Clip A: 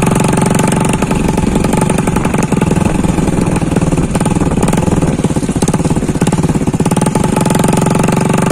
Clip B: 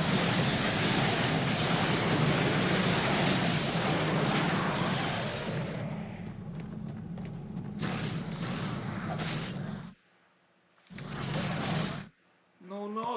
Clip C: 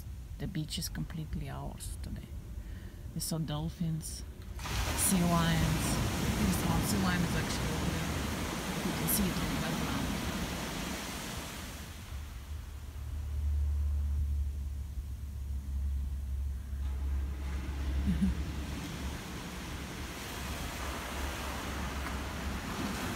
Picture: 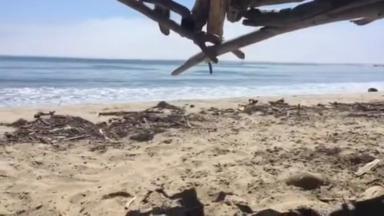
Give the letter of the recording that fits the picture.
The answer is C